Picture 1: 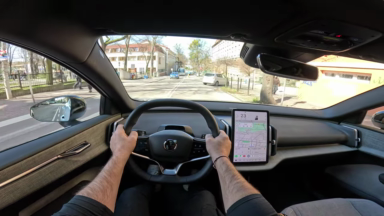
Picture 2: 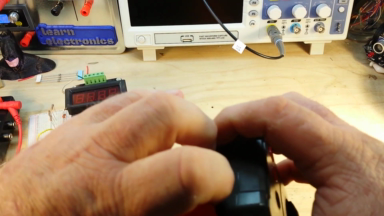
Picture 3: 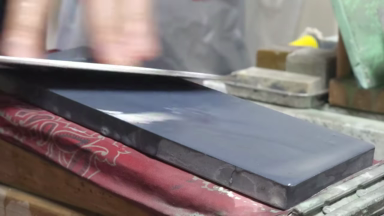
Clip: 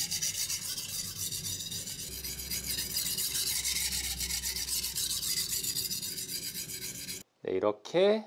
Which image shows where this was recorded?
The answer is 3